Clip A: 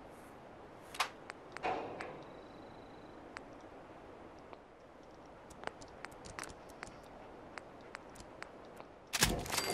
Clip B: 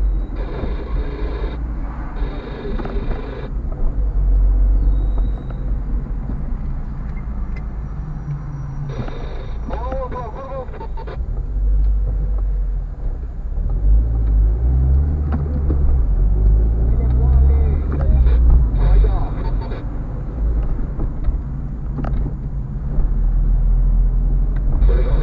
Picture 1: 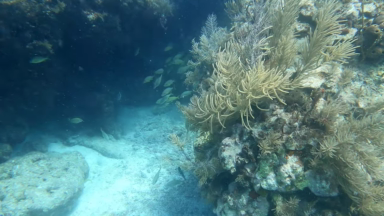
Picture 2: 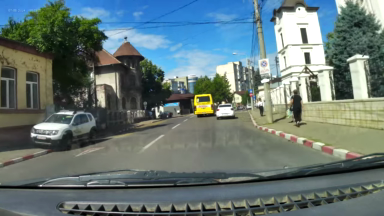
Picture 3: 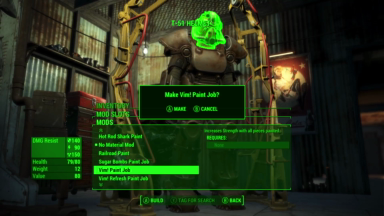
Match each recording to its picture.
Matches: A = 3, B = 2